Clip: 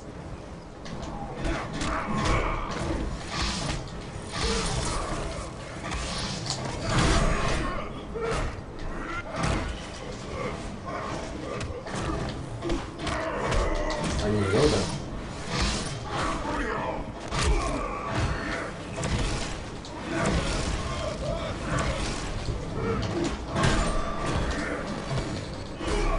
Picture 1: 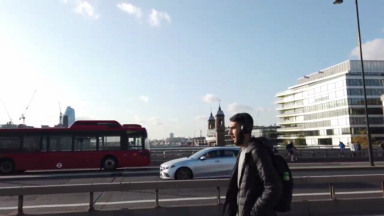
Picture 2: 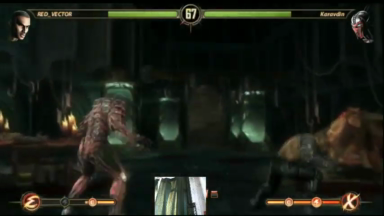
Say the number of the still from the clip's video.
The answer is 2